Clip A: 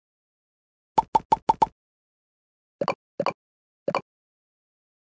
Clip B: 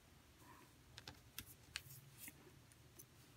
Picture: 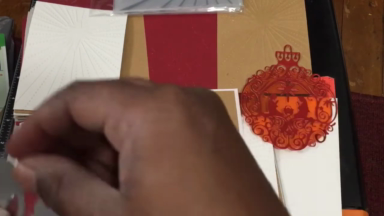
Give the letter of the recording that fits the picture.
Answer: B